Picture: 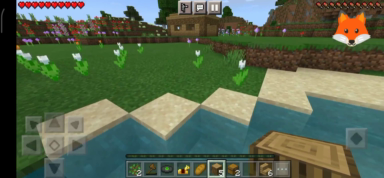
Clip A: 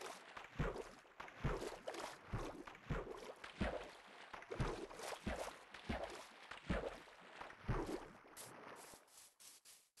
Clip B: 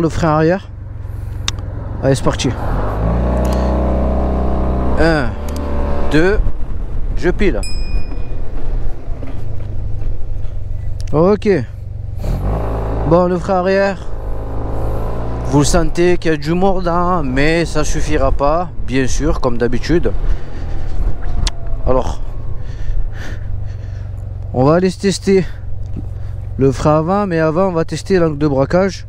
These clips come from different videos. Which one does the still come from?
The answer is A